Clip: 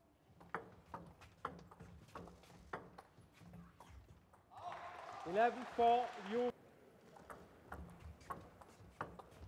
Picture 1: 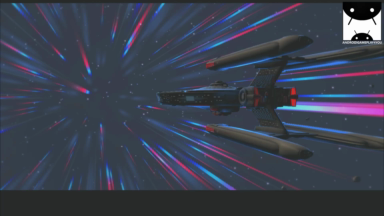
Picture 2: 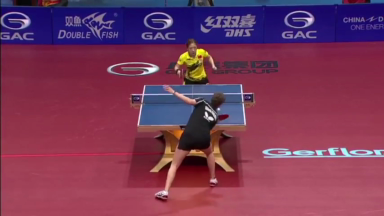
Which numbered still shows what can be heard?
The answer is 2